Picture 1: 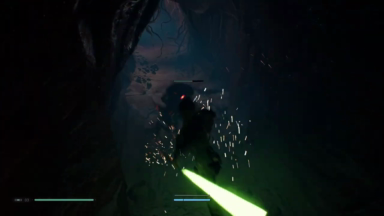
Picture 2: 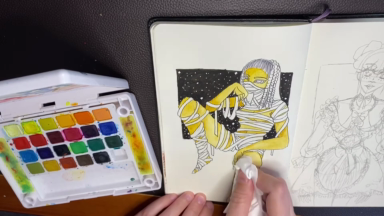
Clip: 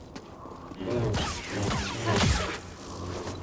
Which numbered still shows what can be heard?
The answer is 1